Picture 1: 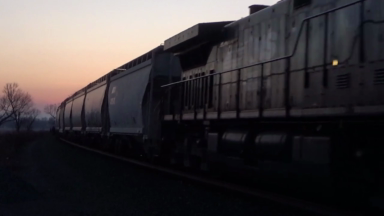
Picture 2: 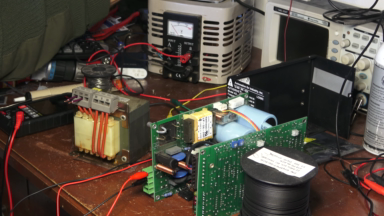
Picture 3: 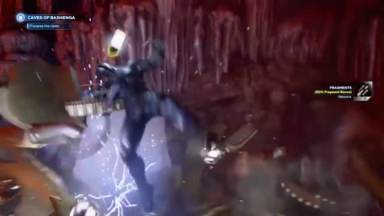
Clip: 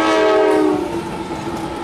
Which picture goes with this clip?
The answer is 1